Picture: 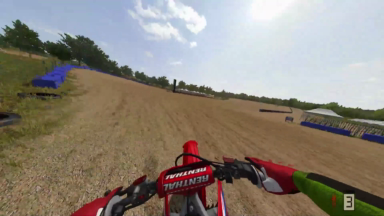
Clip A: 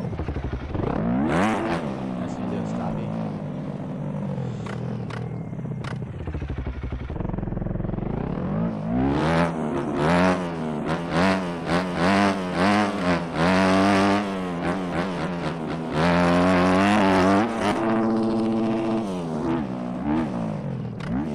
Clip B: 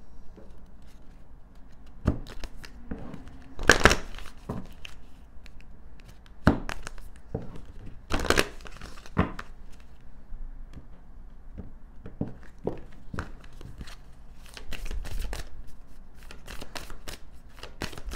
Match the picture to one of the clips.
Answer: A